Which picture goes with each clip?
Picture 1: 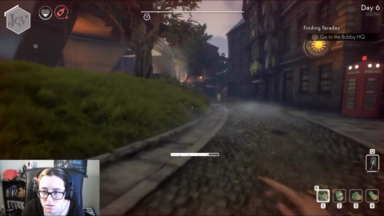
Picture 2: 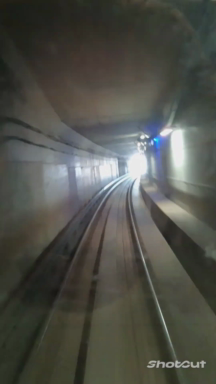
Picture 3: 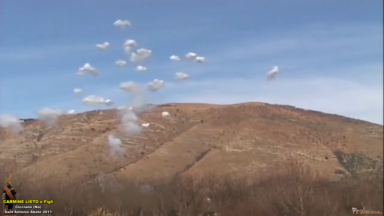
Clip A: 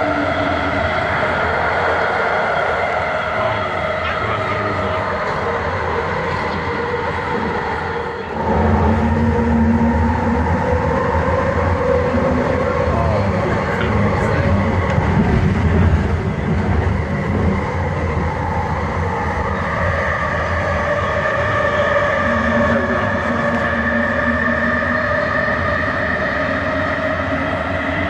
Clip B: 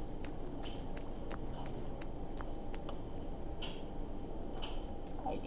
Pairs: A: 2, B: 1